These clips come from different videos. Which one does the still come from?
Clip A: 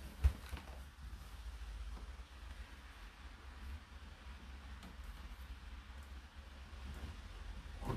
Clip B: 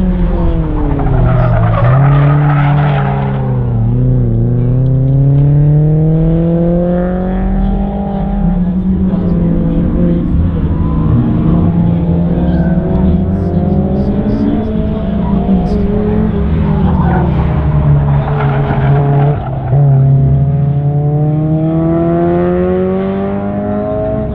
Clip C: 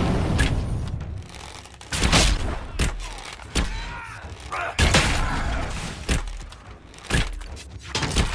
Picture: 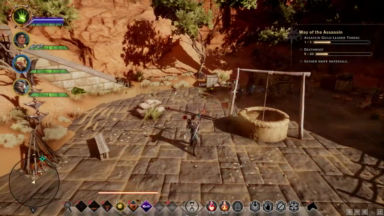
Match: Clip C